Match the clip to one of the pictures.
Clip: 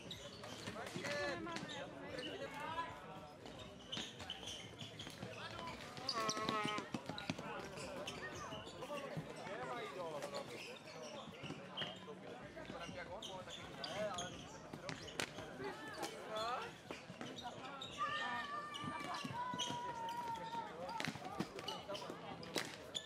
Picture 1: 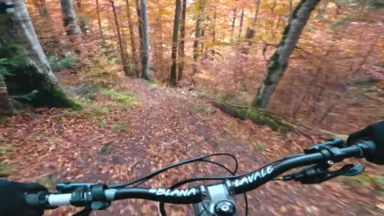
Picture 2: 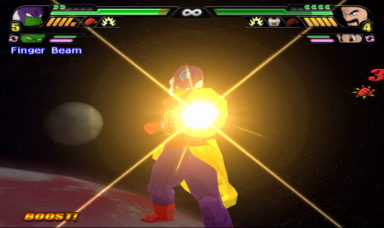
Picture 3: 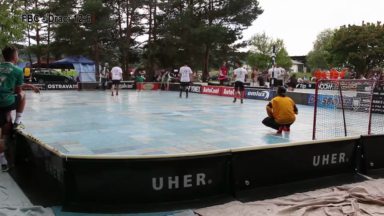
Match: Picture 3